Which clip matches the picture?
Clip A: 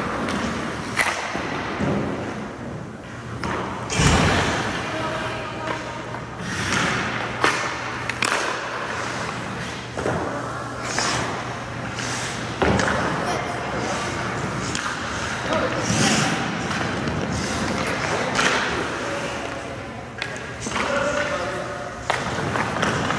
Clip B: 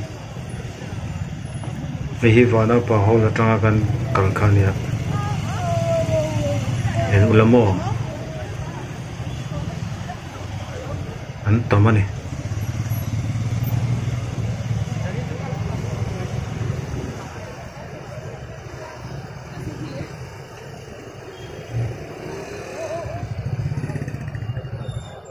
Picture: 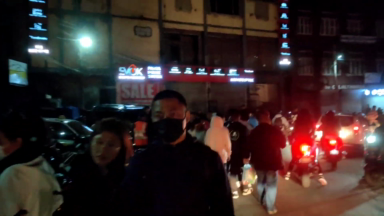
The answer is B